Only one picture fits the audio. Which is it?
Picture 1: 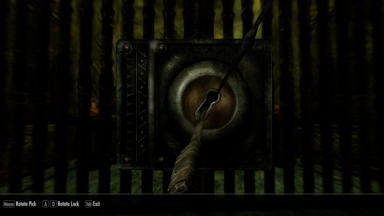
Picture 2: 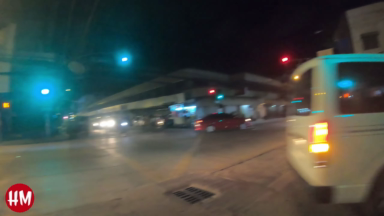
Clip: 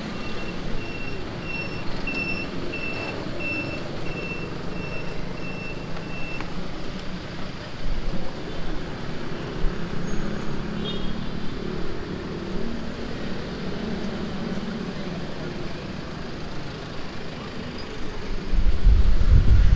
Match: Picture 2